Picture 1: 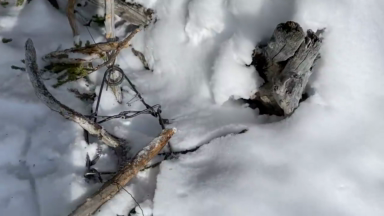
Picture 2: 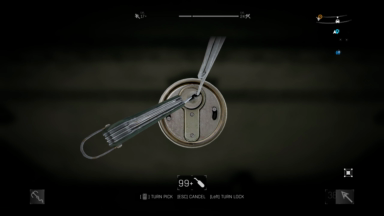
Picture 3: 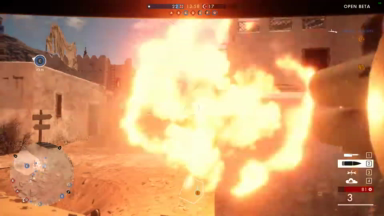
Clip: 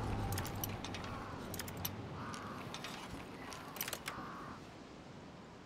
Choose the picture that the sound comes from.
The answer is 2